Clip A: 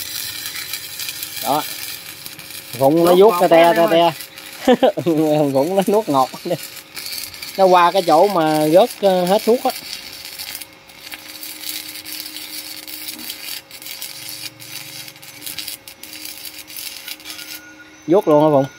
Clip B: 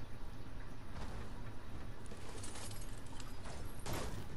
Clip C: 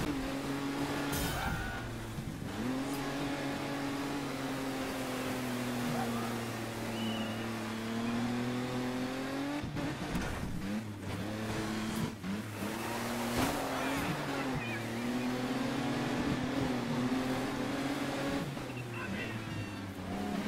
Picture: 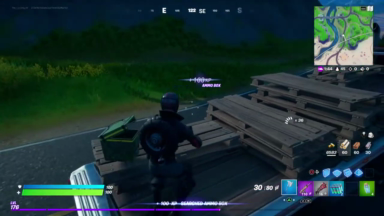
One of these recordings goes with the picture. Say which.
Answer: B